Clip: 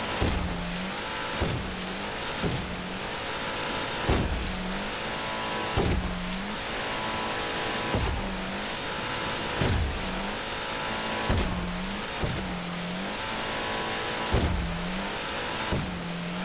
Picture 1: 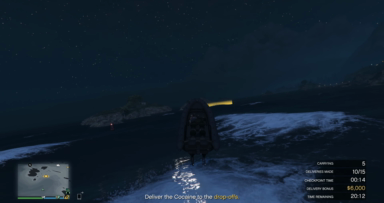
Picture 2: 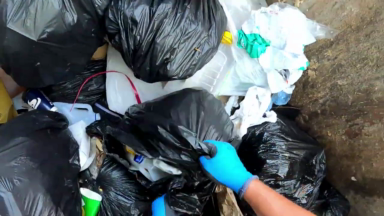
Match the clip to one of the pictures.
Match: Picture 1